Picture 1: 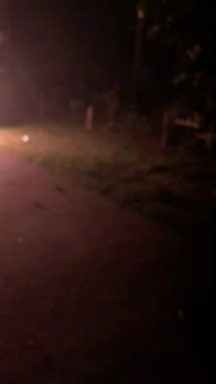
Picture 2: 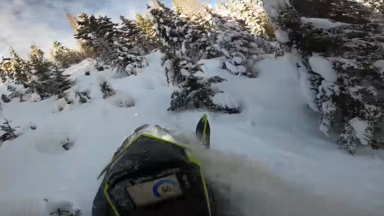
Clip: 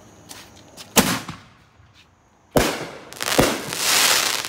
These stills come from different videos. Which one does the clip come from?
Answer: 1